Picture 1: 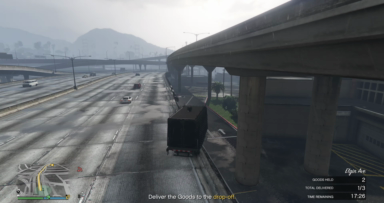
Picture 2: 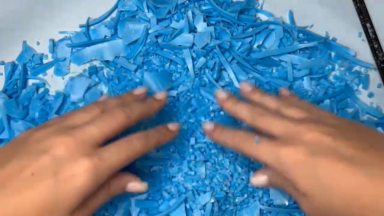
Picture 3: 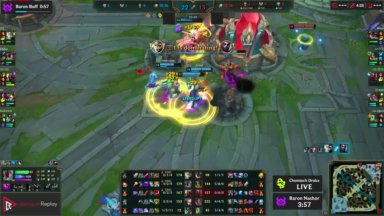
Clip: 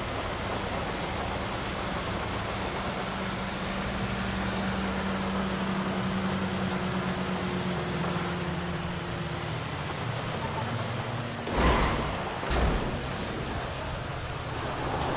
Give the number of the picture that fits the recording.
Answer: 1